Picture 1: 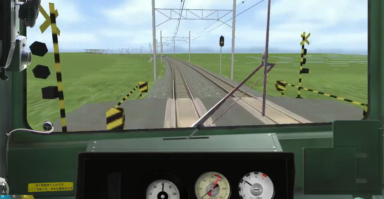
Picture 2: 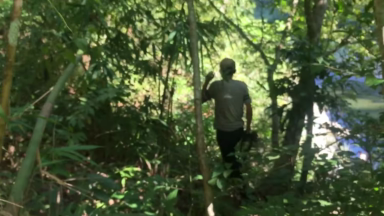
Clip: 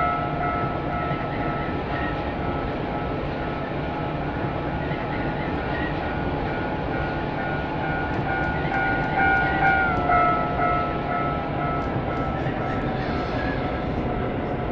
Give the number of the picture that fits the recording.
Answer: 1